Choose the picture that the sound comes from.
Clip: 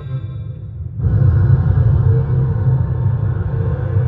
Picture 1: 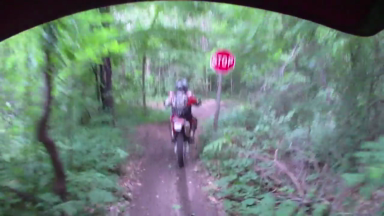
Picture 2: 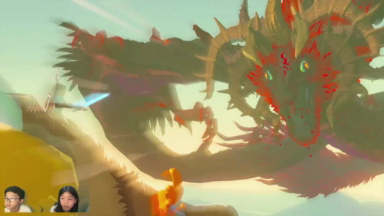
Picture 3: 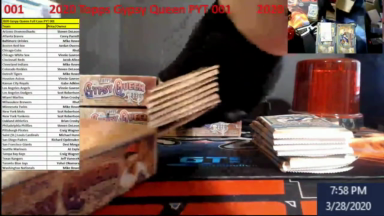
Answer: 2